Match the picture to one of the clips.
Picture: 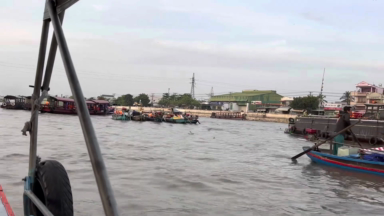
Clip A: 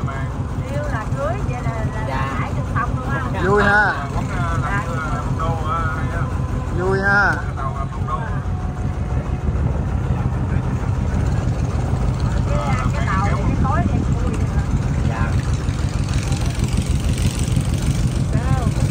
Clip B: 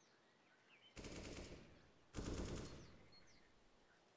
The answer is A